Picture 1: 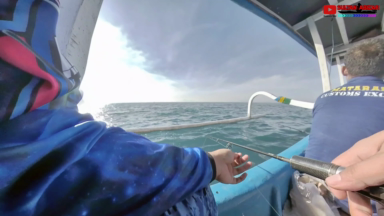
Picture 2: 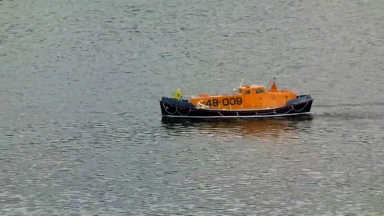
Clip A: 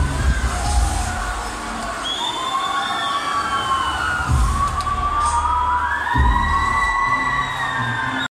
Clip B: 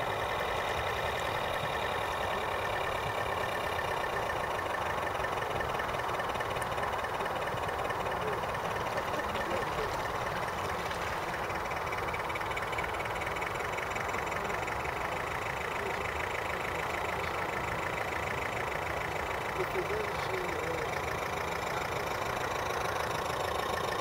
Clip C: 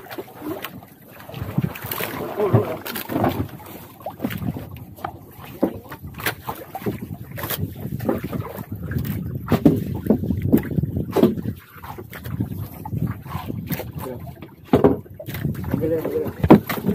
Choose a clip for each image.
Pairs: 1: C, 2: B